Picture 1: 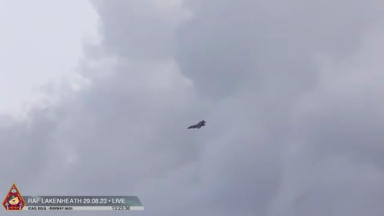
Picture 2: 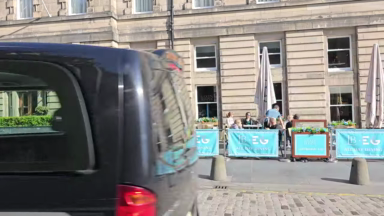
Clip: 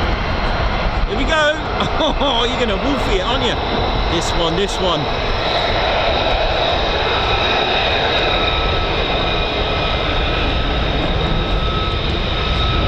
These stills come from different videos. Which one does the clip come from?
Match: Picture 1